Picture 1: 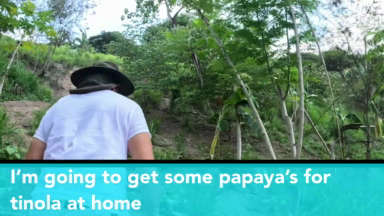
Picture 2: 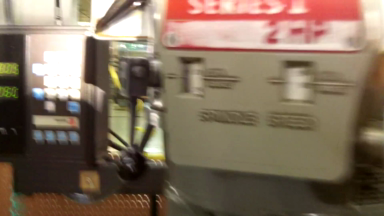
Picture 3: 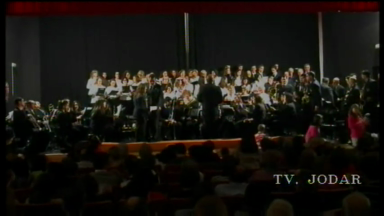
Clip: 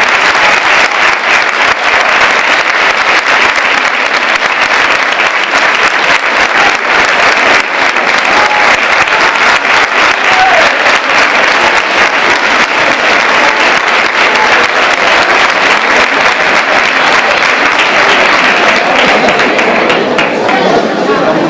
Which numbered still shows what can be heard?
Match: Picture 3